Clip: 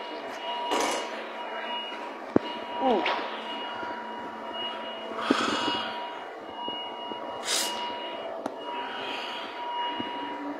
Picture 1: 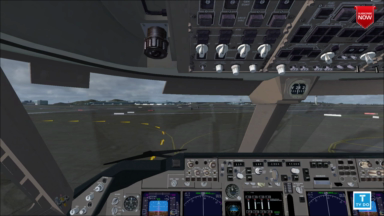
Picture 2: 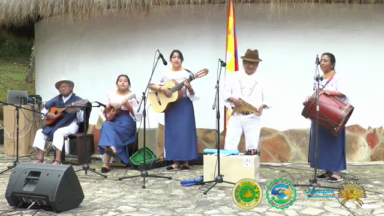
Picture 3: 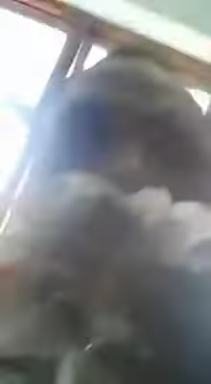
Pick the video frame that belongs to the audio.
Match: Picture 3